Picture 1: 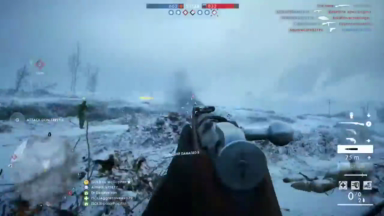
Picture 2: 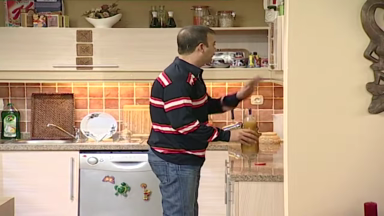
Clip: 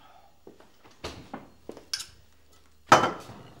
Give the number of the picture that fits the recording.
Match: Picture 2